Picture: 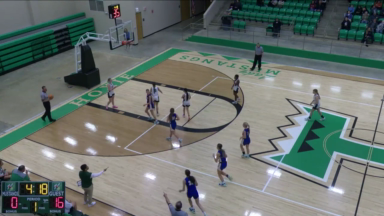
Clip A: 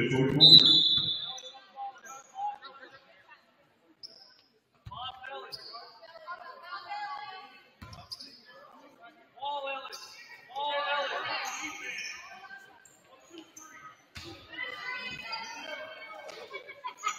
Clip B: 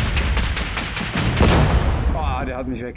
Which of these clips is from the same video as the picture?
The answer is A